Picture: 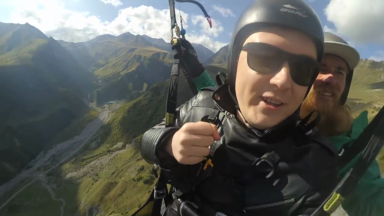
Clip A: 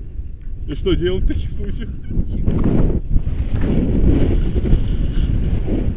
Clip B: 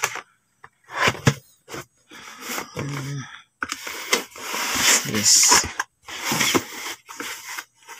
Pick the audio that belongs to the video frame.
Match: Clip A